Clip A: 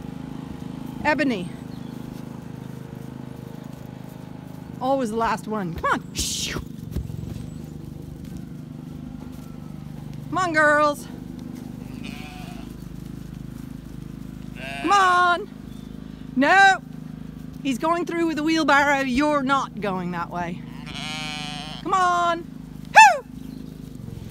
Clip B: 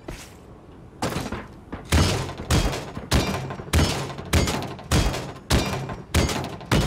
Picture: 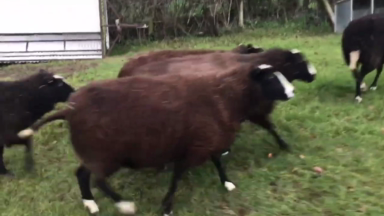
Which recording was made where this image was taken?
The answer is A